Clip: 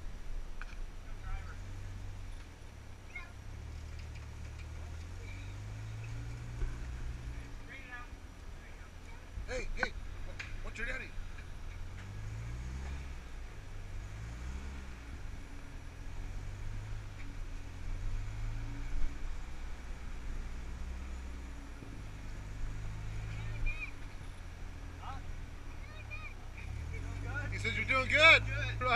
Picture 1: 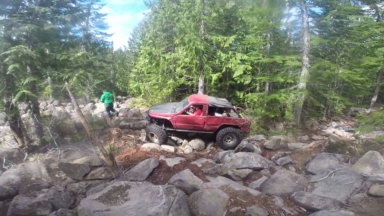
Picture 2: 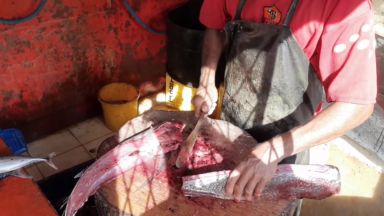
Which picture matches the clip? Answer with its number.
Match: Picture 1